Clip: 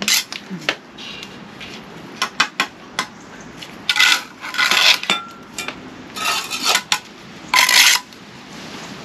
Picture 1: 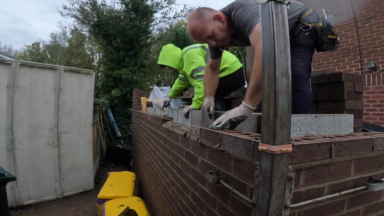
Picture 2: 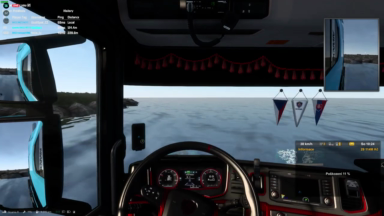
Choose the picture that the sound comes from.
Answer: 1